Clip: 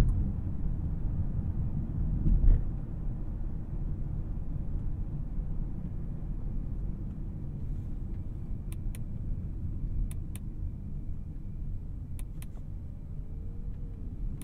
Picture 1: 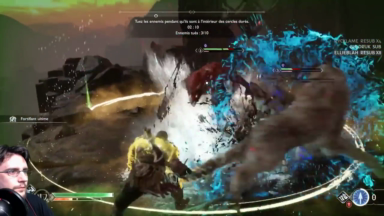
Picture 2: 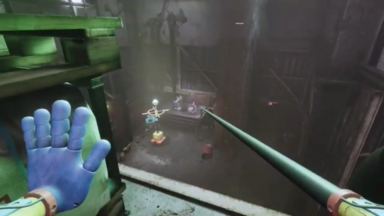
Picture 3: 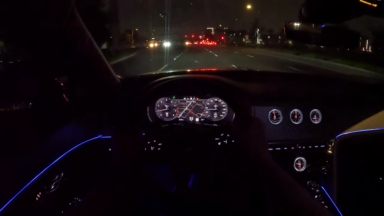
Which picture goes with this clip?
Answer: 3